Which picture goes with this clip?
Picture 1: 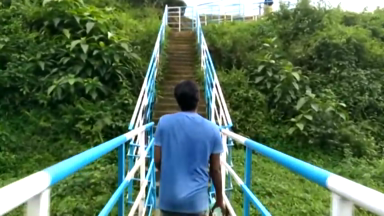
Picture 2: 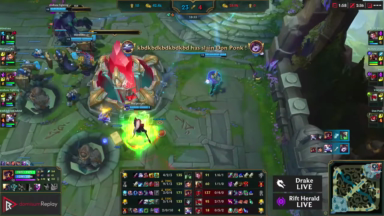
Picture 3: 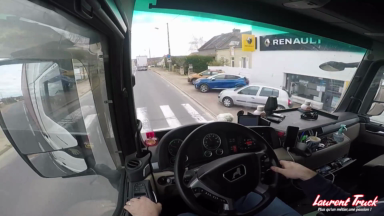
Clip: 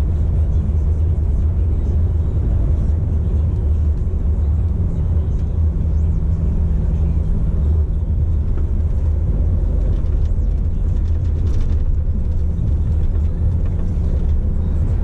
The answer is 3